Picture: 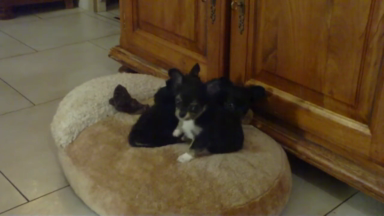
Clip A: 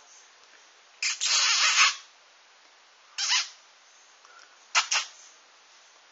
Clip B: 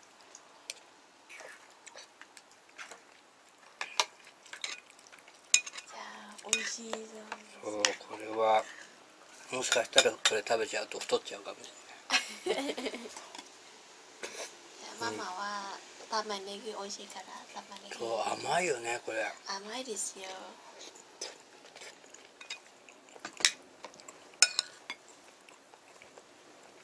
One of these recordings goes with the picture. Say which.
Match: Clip A